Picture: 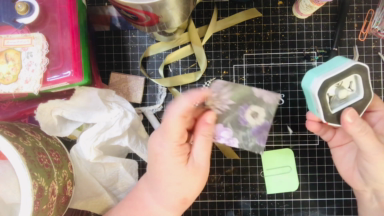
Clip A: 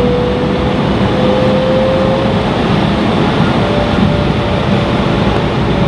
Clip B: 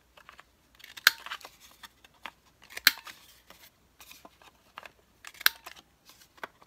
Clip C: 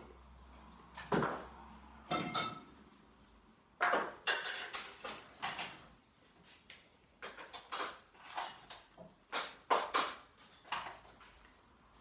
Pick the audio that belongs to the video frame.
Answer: B